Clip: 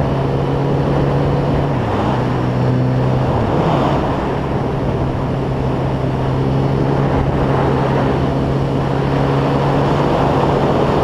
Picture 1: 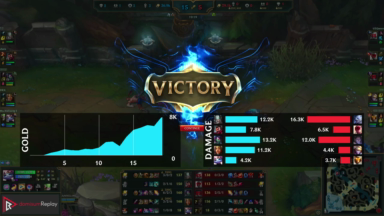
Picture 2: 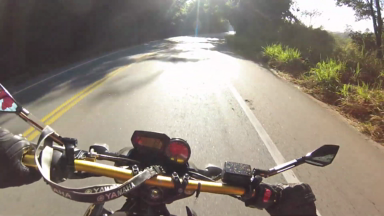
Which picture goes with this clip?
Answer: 2